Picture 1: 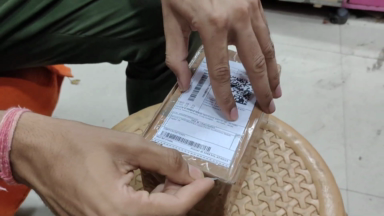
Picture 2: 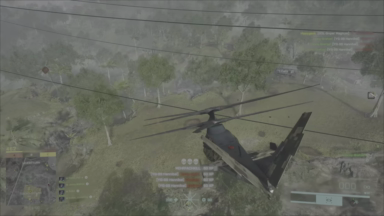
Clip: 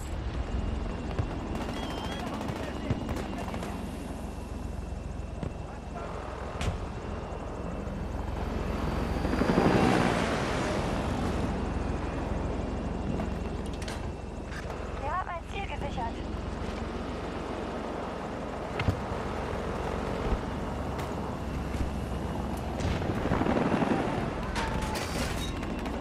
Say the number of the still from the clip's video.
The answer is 2